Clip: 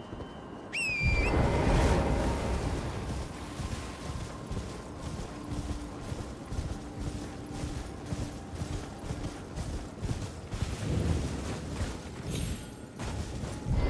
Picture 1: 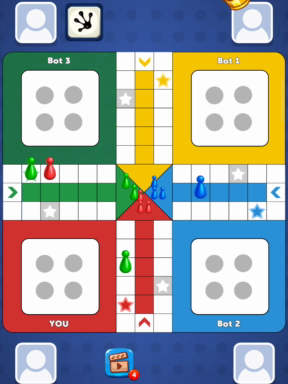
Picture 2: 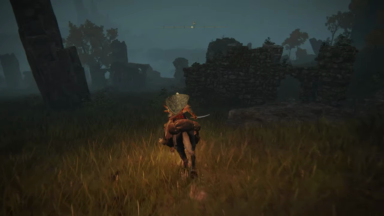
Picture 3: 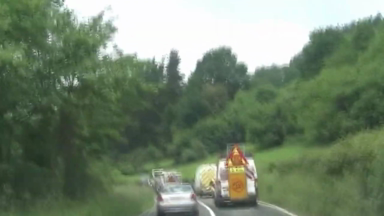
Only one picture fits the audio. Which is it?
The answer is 2